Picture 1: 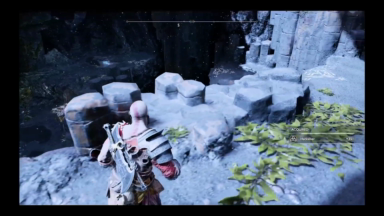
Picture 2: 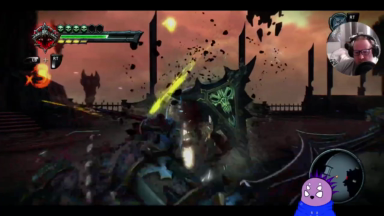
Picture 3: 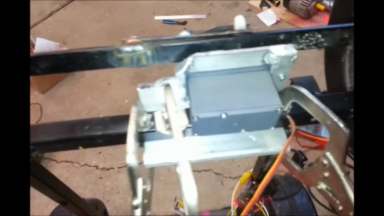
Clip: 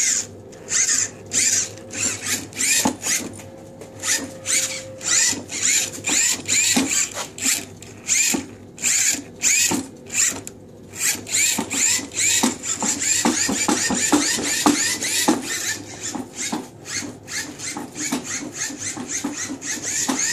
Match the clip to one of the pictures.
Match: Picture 3